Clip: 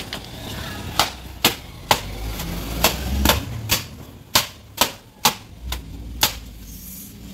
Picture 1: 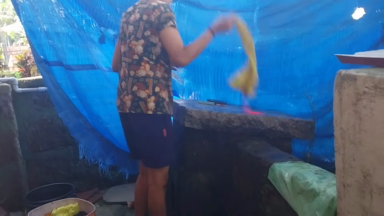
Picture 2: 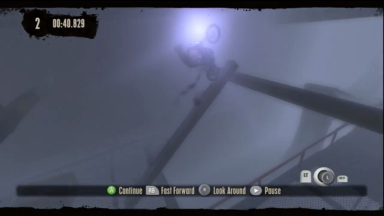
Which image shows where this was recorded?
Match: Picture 1